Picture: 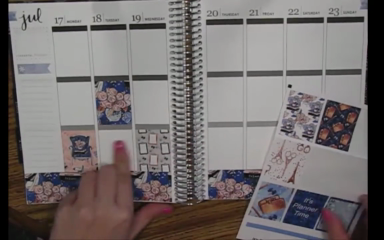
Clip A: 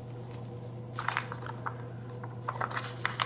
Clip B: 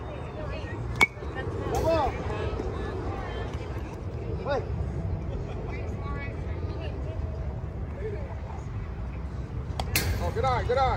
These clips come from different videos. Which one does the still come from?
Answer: A